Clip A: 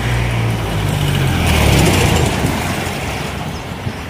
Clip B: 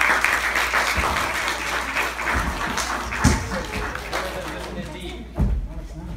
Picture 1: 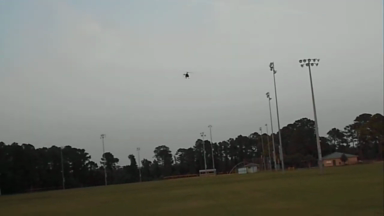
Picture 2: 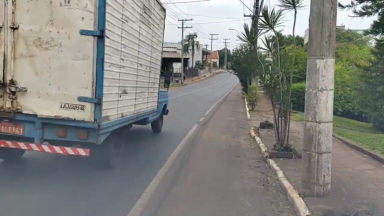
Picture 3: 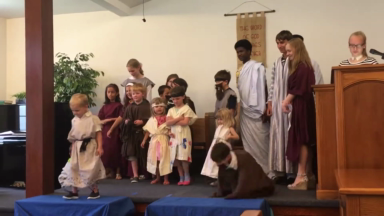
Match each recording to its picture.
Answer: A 2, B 3